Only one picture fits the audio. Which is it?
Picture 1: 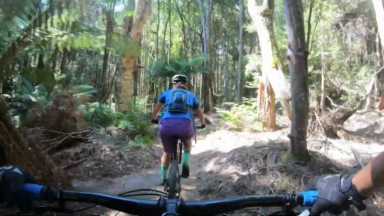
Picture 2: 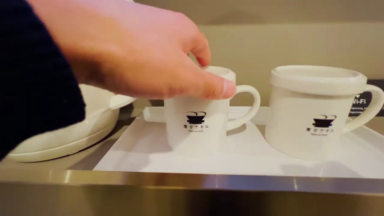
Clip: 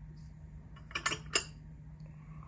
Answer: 2